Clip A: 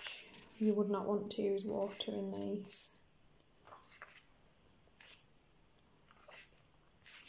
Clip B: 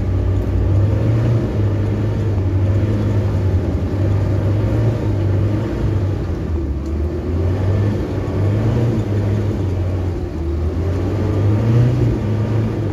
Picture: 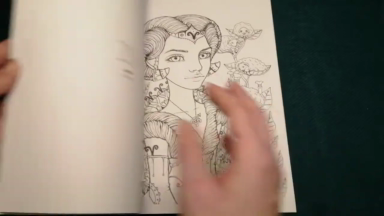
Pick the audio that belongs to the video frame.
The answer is A